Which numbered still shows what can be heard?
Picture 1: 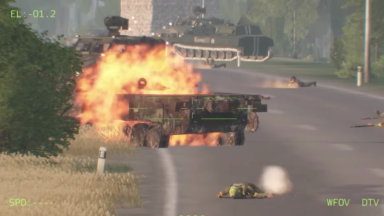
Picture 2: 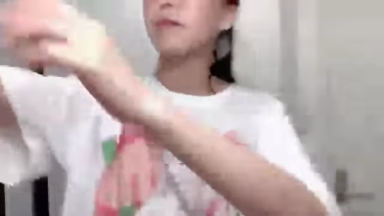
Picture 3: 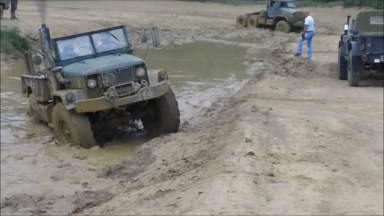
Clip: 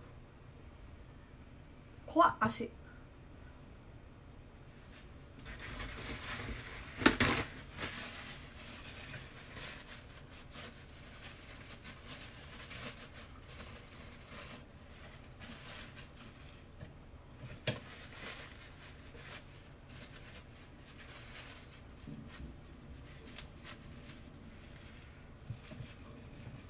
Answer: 2